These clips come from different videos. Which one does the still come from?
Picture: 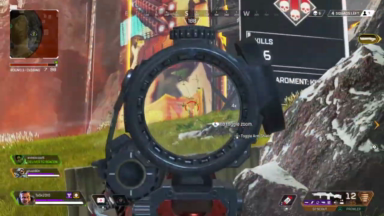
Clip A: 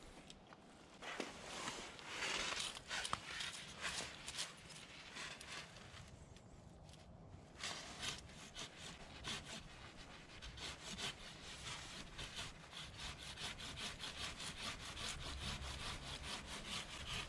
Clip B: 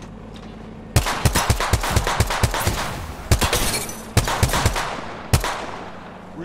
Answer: B